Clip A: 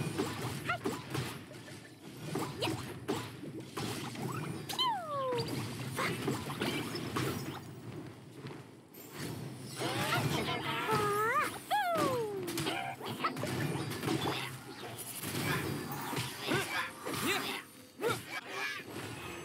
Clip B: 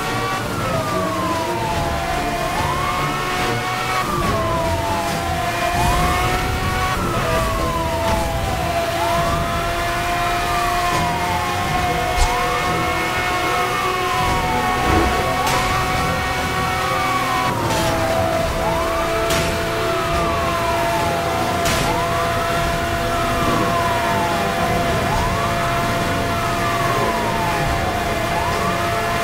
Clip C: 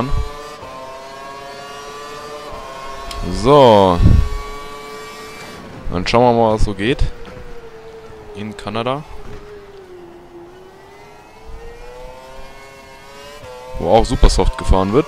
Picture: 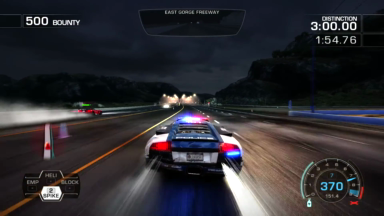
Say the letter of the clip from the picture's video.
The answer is B